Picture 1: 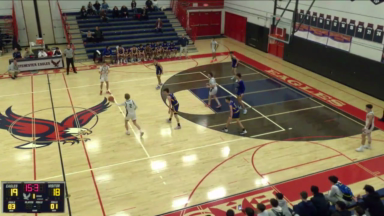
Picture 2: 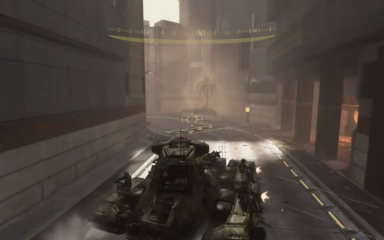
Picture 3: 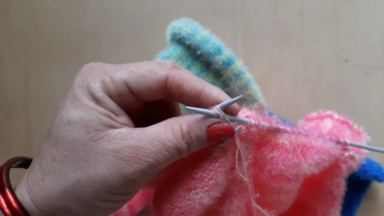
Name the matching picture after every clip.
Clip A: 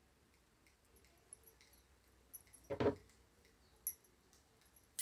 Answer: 3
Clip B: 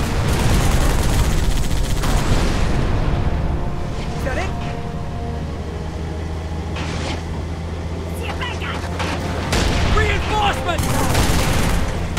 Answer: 2